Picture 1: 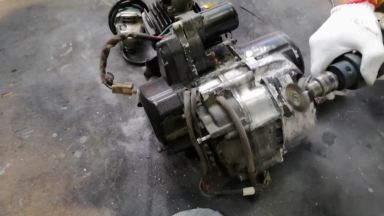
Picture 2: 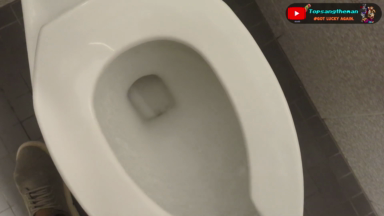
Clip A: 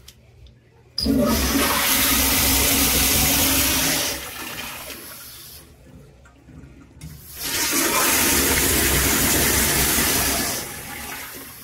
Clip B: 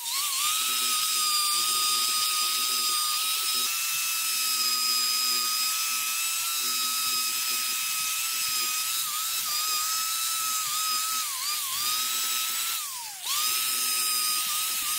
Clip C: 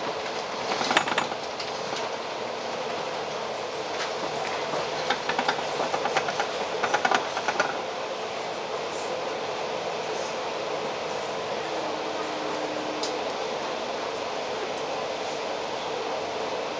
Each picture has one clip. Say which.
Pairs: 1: B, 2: A